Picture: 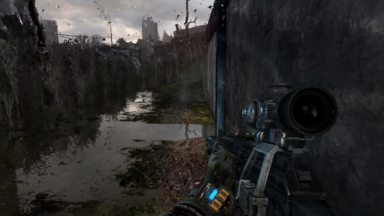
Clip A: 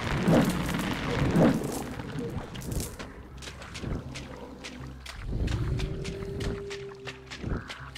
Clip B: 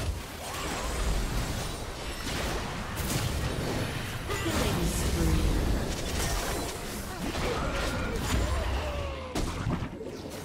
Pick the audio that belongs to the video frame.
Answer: A